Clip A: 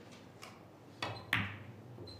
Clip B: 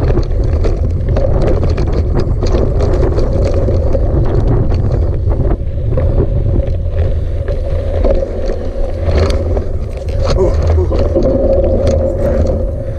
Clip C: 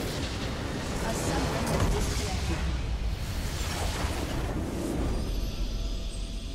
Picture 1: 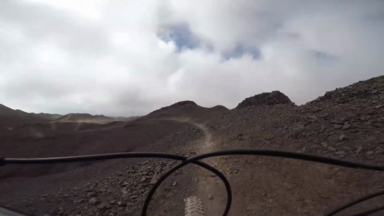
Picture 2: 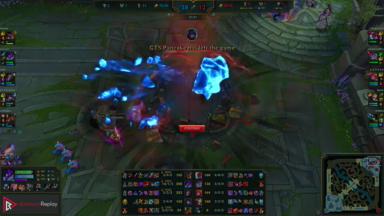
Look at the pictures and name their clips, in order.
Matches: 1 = B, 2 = C